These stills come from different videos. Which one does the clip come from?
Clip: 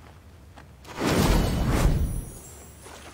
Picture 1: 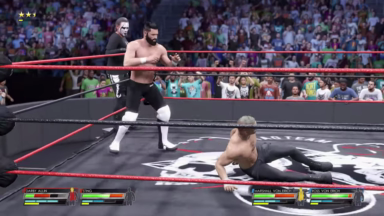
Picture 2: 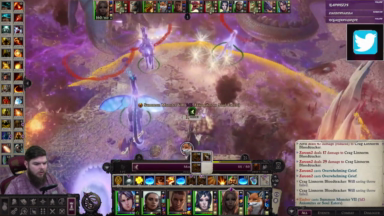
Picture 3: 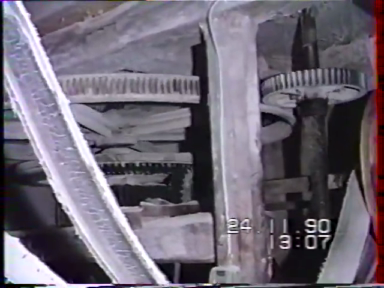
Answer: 2